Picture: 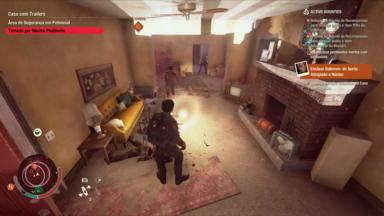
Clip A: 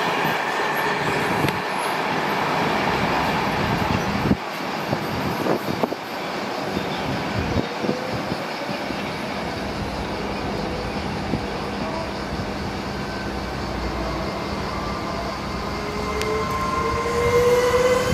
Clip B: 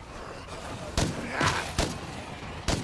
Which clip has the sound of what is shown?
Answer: B